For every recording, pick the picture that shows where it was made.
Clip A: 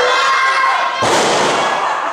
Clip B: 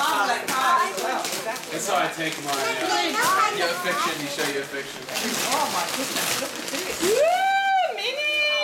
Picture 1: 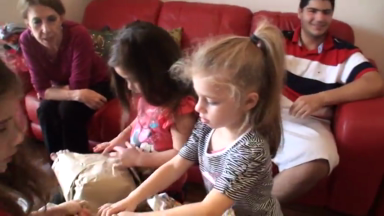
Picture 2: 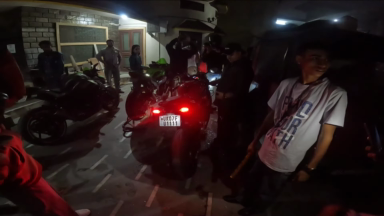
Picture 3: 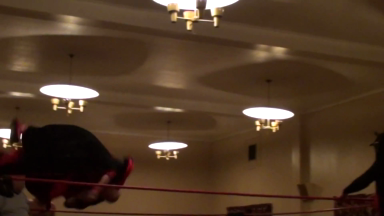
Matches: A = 3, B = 1